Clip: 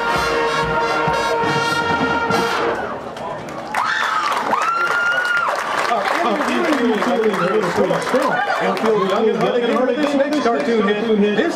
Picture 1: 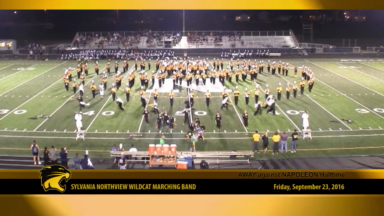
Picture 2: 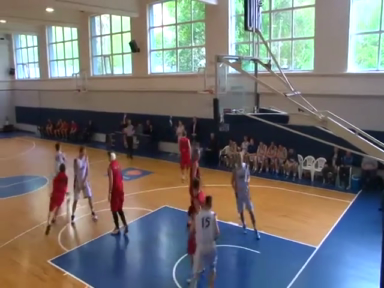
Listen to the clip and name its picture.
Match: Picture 1